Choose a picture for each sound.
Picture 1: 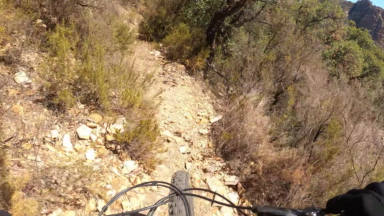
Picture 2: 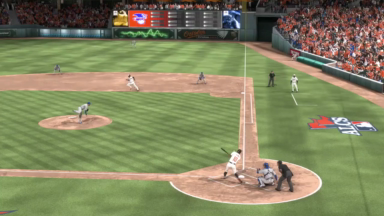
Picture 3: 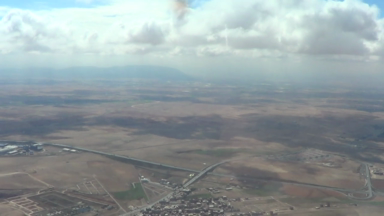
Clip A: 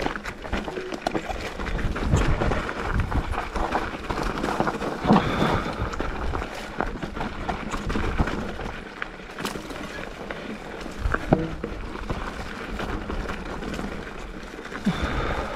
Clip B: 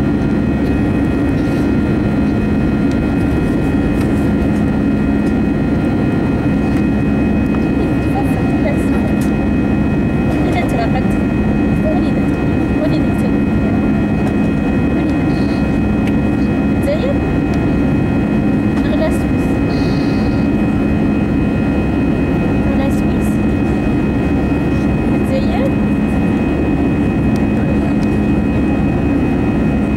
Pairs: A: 1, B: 3